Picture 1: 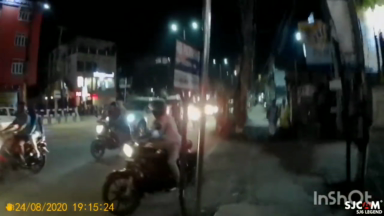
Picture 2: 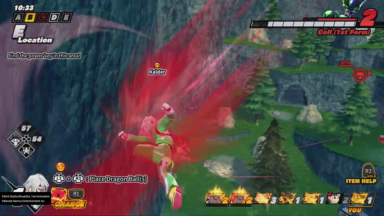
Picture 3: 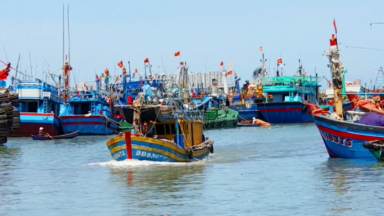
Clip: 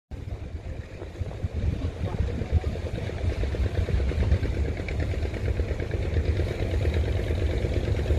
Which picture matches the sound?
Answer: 3